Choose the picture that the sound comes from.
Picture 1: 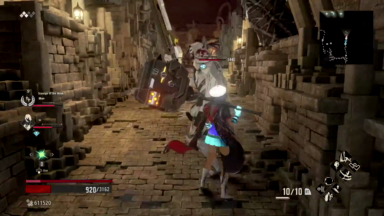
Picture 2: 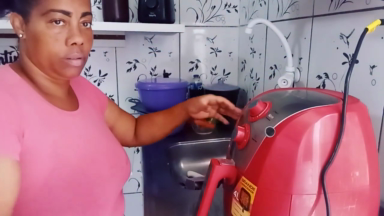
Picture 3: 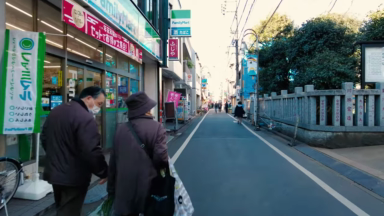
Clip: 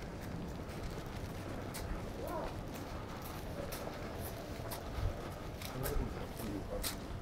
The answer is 3